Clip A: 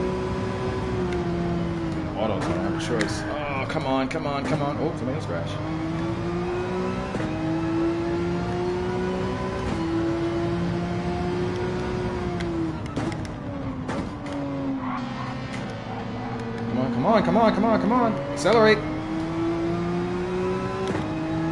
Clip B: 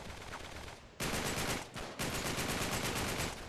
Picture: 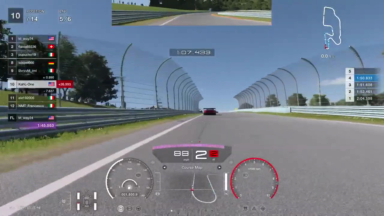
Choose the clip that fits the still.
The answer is A